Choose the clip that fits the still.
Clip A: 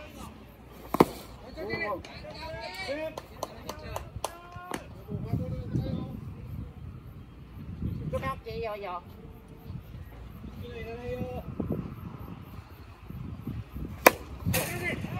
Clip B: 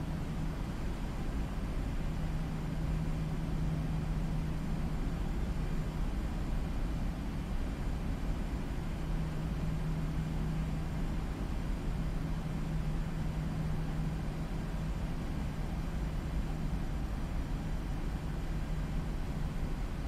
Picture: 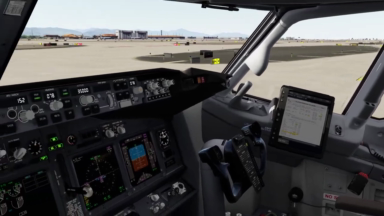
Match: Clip B